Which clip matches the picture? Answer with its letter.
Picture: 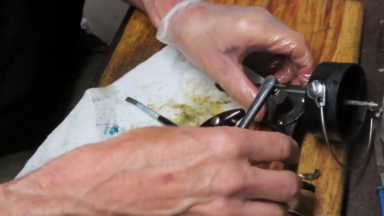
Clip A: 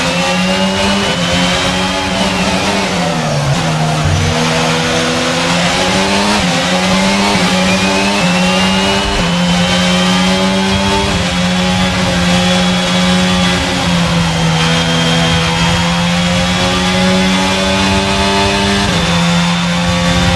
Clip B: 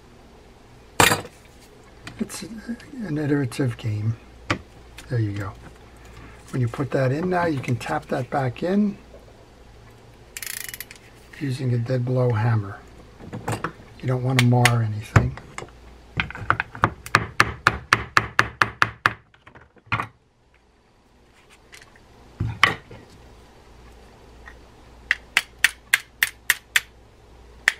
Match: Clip B